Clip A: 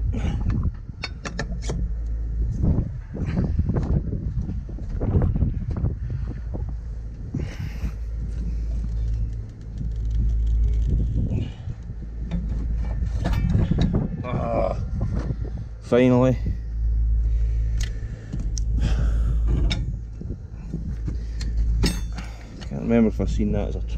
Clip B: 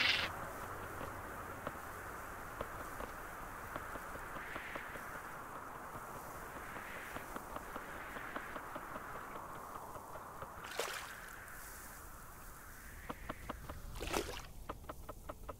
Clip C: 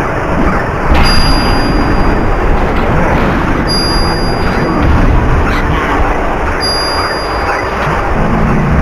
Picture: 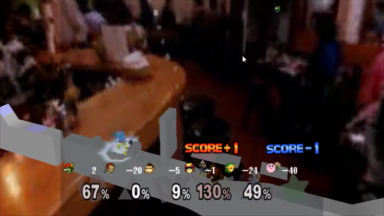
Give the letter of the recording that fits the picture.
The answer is C